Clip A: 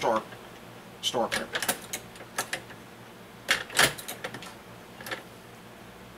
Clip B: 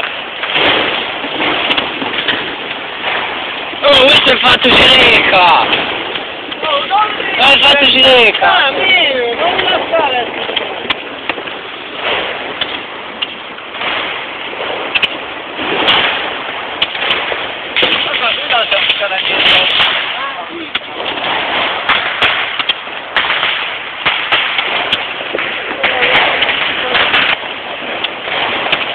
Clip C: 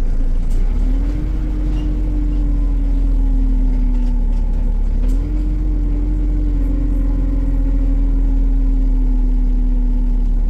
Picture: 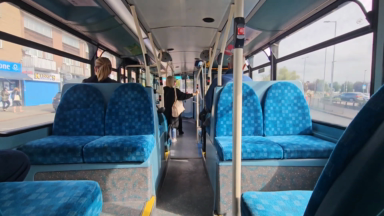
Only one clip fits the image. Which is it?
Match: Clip C